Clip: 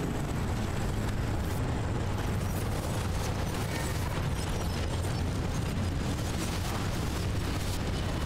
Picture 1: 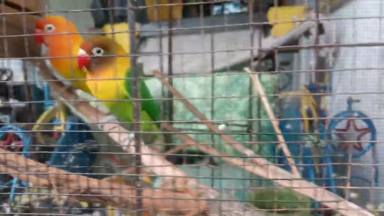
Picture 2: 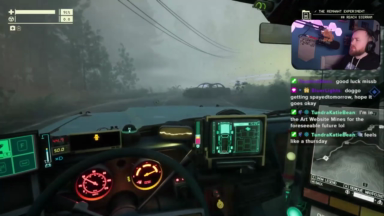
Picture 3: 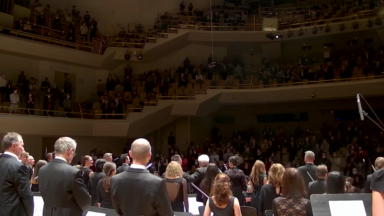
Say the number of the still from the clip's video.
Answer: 2